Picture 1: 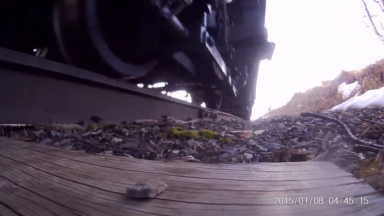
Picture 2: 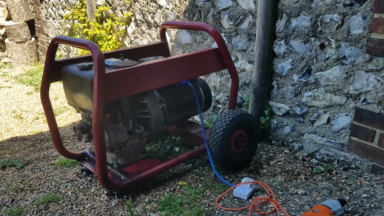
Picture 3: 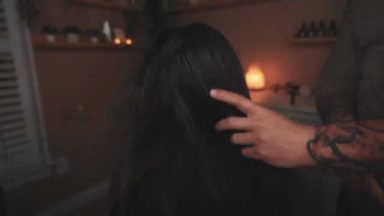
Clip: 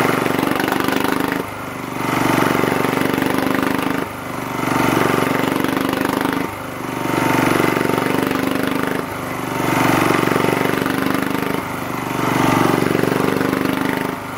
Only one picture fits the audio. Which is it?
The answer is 2